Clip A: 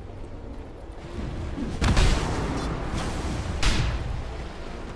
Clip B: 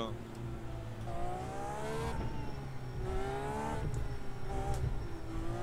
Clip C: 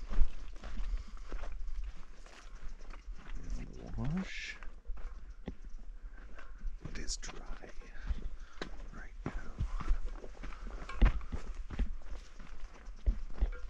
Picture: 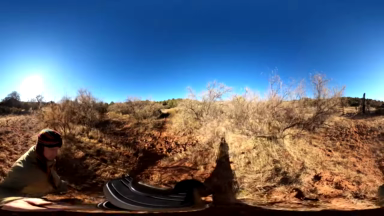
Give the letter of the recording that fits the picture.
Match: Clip C